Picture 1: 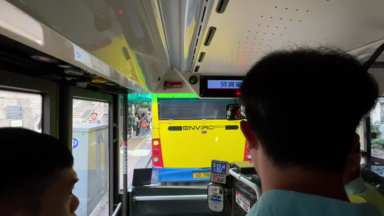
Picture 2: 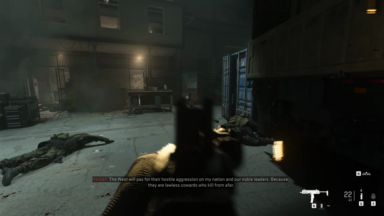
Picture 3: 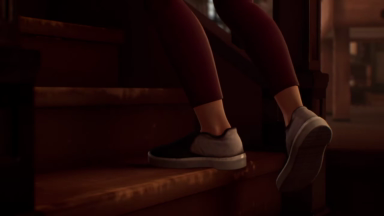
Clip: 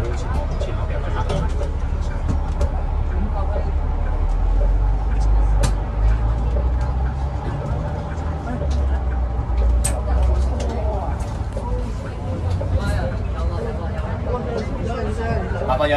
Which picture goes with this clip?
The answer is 1